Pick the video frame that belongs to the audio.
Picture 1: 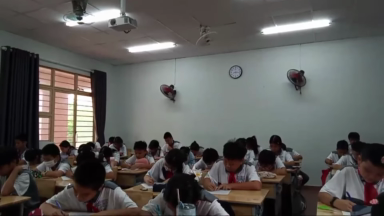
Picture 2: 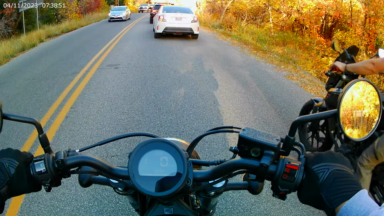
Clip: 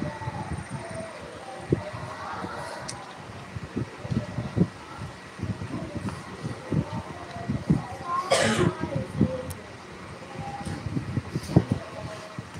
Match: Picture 1